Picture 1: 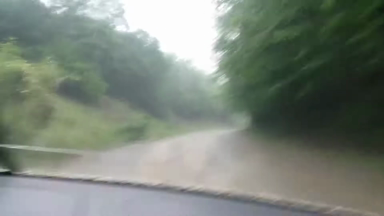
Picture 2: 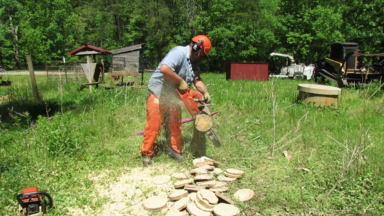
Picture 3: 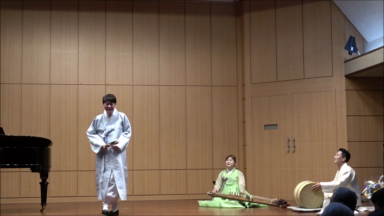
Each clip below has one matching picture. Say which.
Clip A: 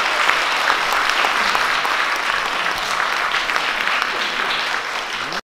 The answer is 3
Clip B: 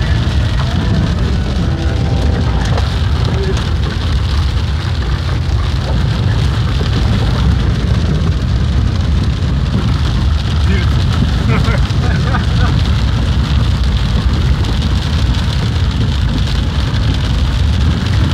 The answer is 1